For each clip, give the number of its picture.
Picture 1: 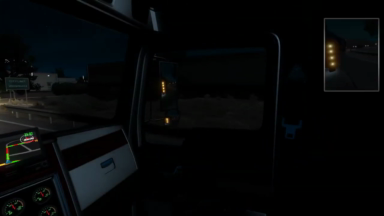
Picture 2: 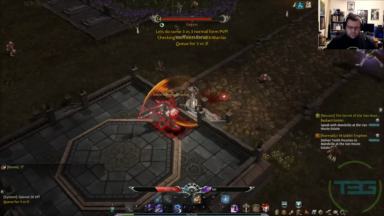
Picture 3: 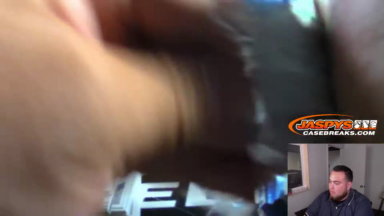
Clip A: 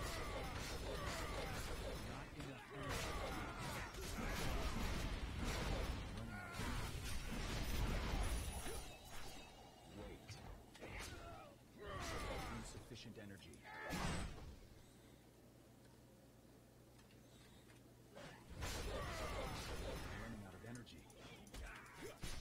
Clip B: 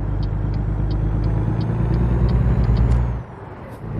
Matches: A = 2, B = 1